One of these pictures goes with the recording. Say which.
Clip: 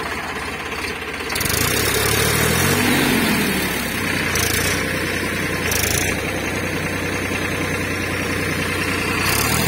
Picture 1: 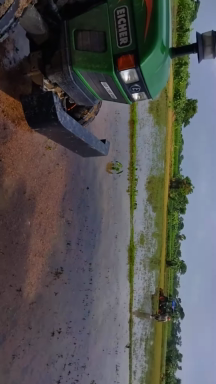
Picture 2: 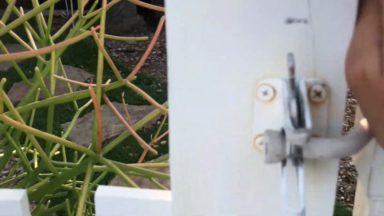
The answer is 1